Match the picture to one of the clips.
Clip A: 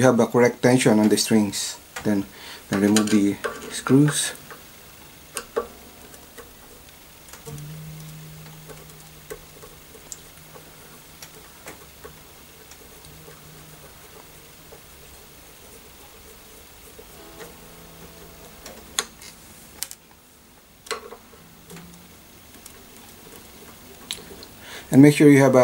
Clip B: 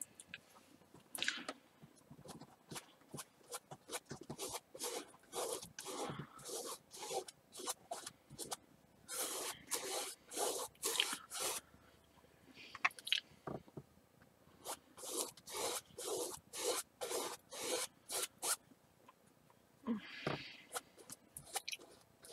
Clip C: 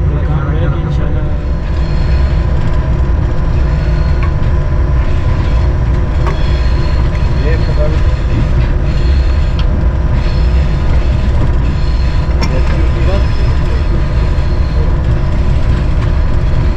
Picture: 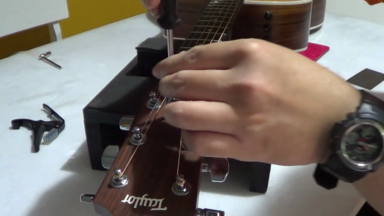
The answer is A